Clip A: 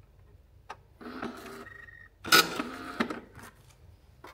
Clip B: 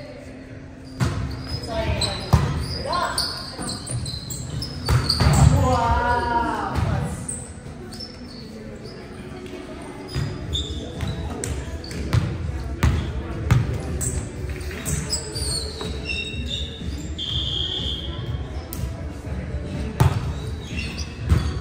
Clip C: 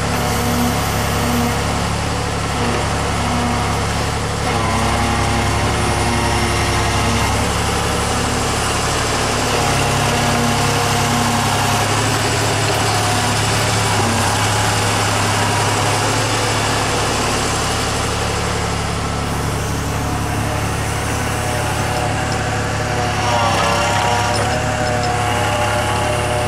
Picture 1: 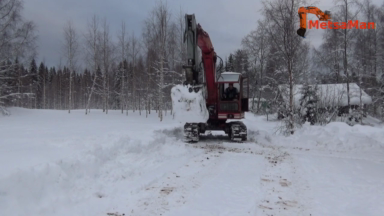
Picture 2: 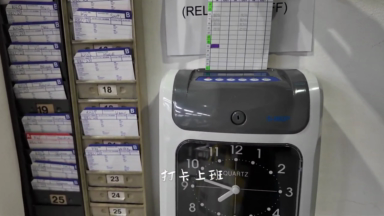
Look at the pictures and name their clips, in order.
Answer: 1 C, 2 A